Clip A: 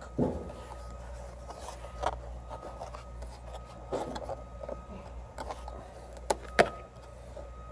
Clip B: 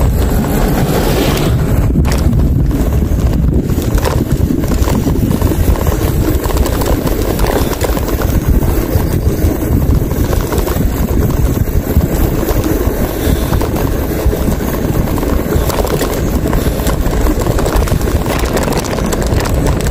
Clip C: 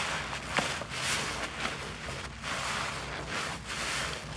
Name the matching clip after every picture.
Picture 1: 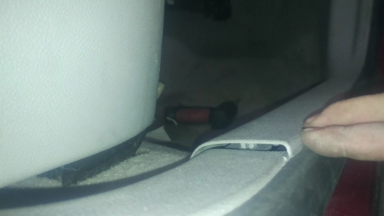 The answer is A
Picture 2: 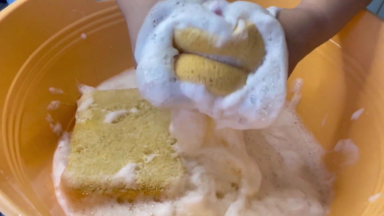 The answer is C